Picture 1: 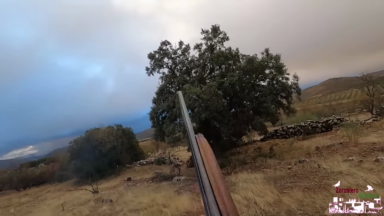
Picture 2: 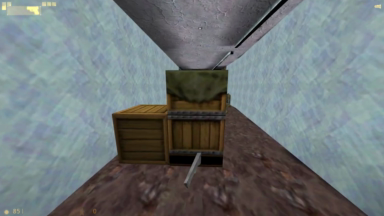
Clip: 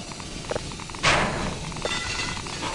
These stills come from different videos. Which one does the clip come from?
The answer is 2